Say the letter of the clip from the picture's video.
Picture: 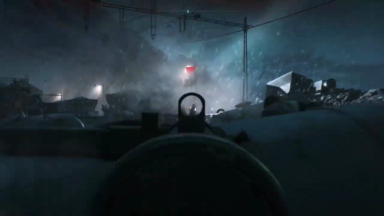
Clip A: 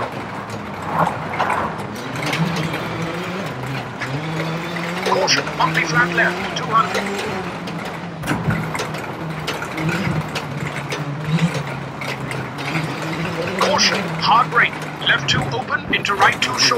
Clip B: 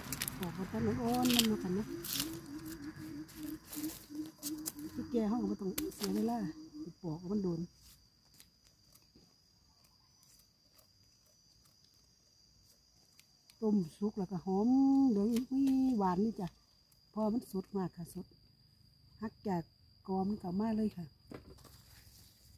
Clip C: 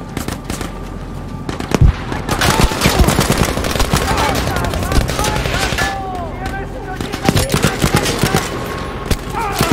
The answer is C